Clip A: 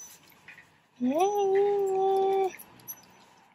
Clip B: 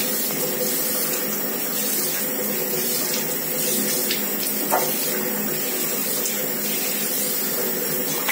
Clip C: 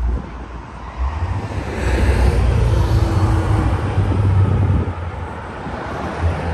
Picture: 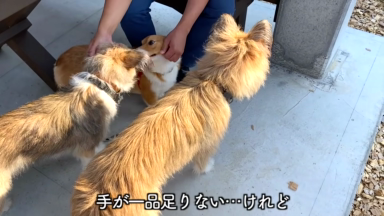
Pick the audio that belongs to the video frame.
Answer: A